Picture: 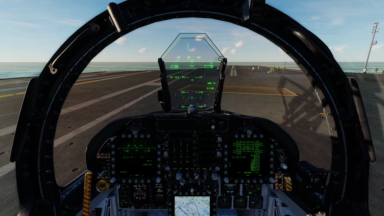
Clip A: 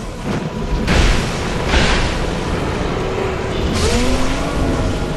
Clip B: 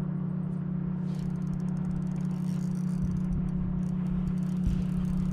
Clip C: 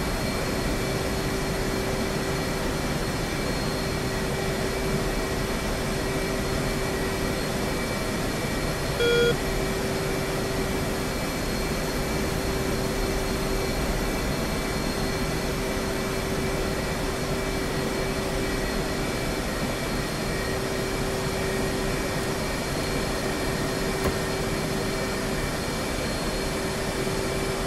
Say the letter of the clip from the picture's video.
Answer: C